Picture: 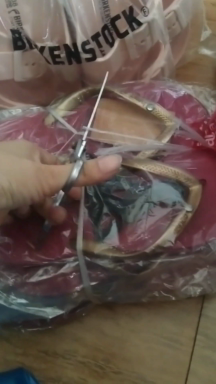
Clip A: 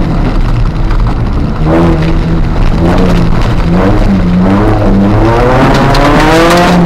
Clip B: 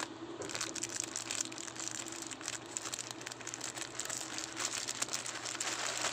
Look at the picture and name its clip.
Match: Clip B